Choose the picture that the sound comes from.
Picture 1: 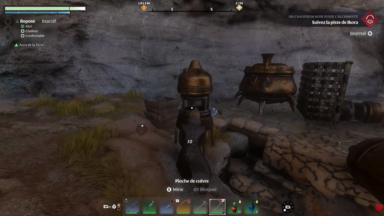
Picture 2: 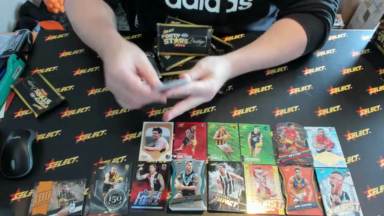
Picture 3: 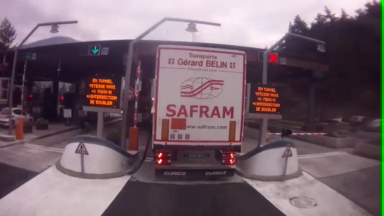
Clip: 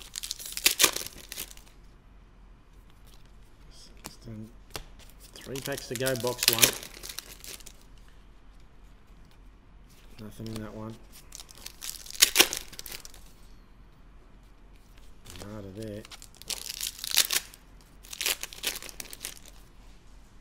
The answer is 2